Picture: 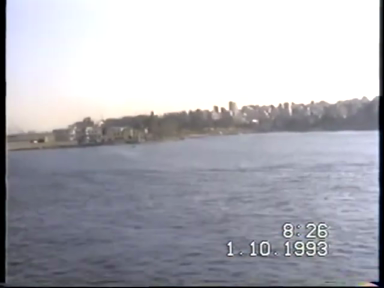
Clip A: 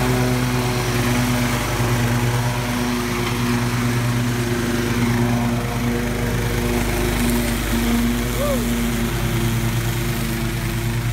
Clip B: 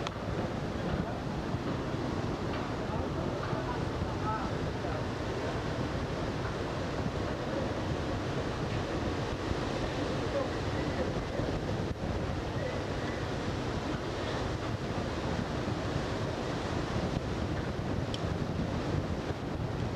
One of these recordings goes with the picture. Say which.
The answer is B